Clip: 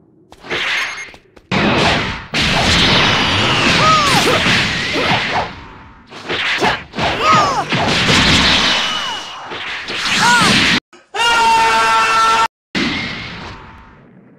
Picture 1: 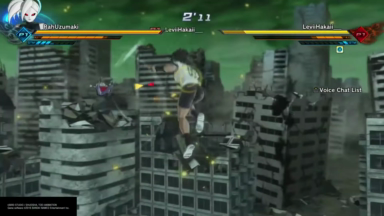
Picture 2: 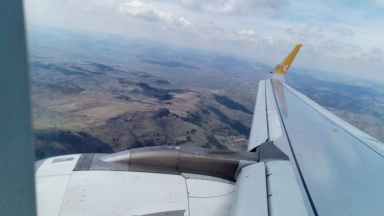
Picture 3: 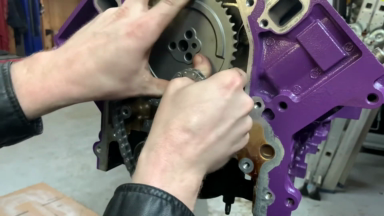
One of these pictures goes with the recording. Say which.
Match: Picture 1